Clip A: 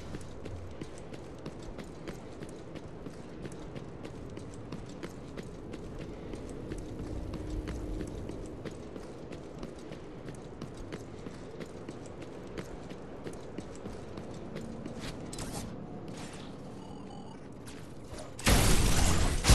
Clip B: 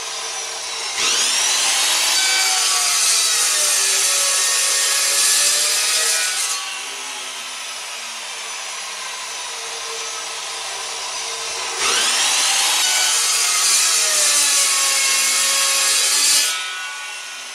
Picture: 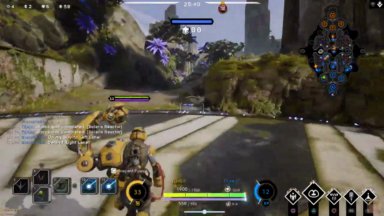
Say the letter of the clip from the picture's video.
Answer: A